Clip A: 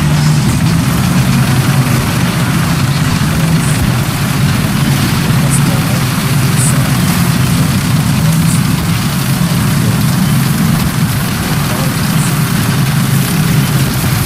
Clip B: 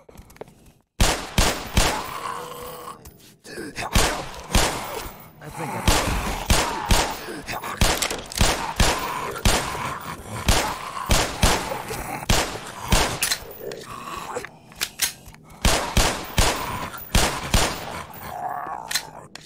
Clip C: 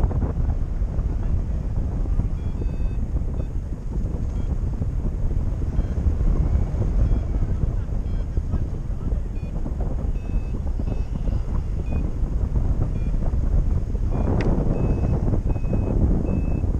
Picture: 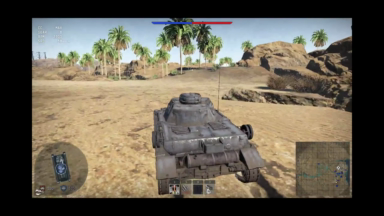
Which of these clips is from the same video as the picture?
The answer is A